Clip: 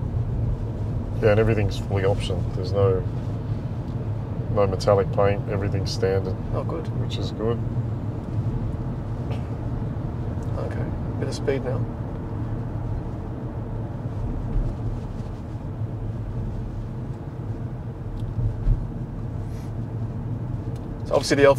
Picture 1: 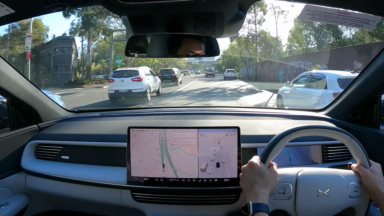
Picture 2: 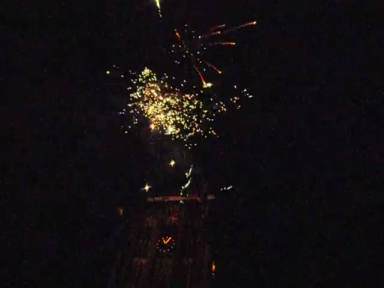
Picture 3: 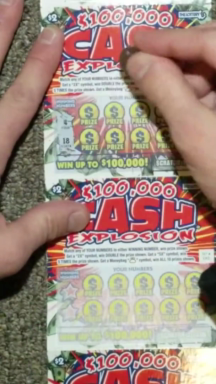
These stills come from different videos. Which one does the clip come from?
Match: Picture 1